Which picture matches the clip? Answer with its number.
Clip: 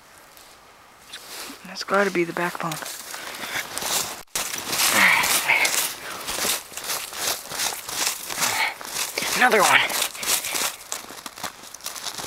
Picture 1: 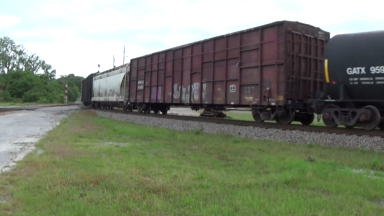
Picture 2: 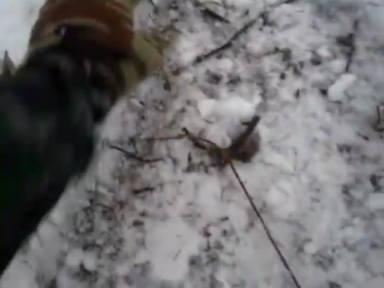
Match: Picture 2